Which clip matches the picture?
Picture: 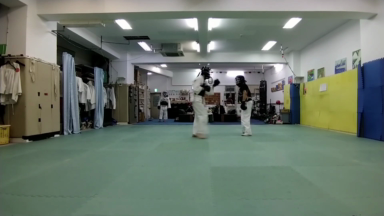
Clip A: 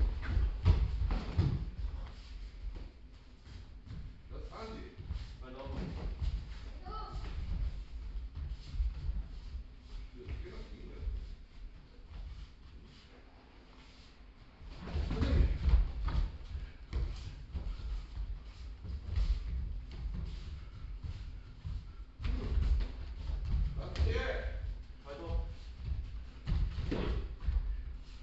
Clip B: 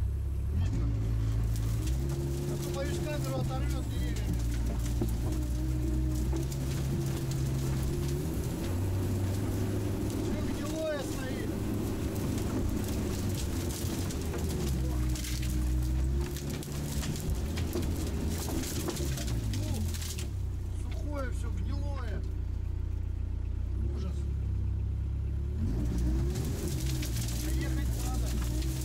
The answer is A